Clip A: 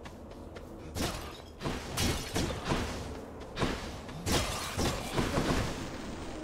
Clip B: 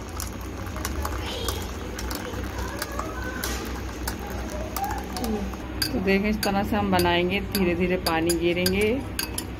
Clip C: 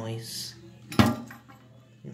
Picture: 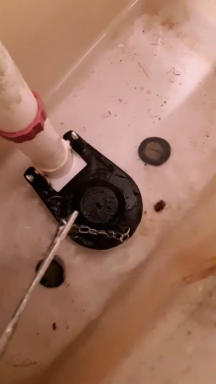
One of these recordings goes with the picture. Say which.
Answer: C